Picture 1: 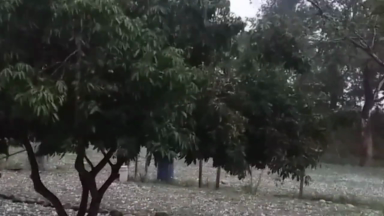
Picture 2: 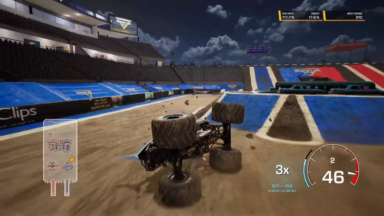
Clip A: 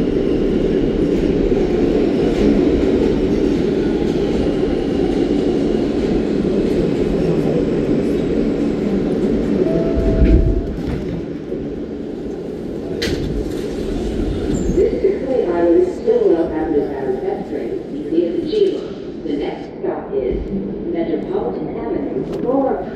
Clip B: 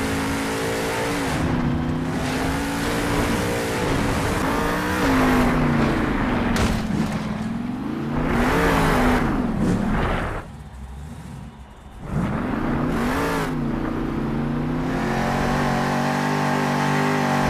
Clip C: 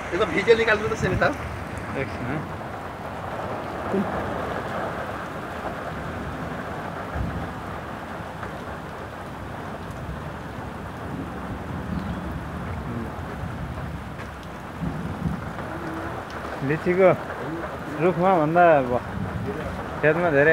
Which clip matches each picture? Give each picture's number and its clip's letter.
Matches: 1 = C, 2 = B